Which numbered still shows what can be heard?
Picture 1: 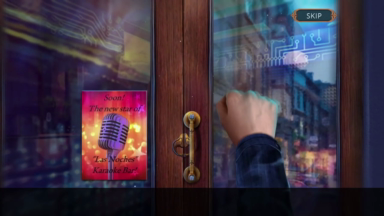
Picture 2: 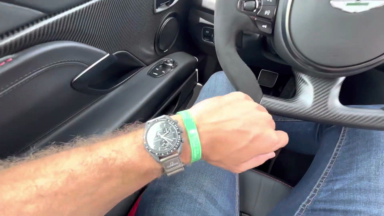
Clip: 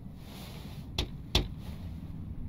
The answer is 1